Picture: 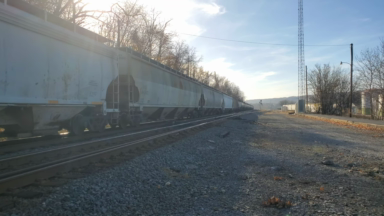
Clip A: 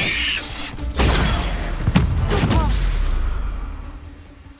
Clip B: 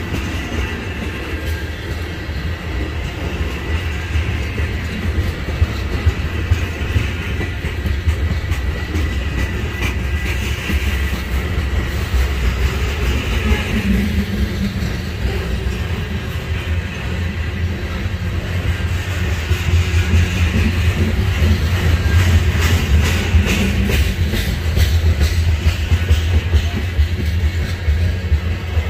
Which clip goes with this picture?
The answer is B